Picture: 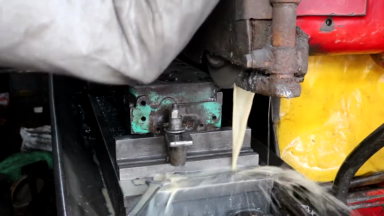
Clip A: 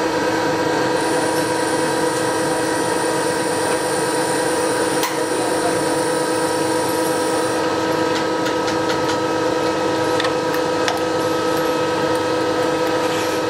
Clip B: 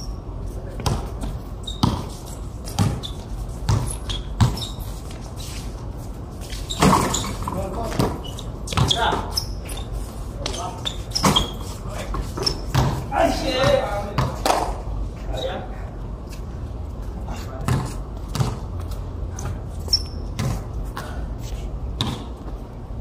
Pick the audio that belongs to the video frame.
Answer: A